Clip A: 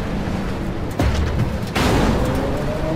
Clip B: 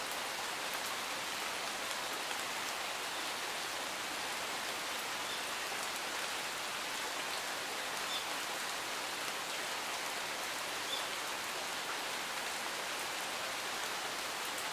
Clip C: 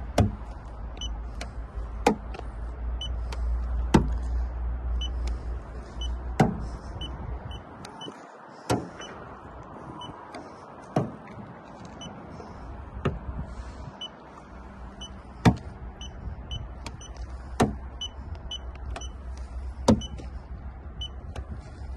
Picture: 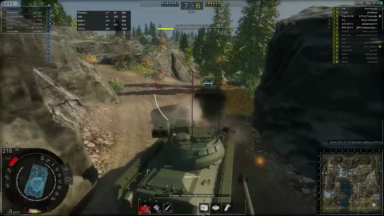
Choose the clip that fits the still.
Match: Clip A